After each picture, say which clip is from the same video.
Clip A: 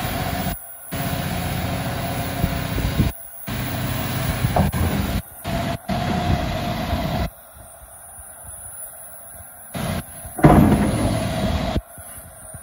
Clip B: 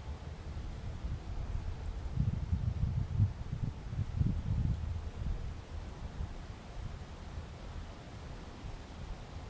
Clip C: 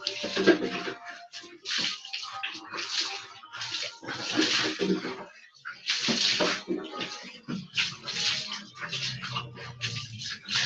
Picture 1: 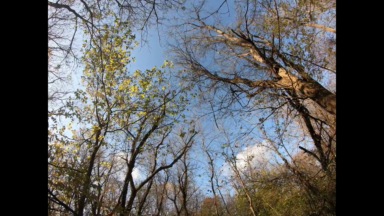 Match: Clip B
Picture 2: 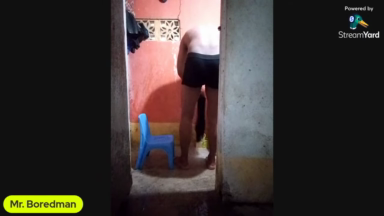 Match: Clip C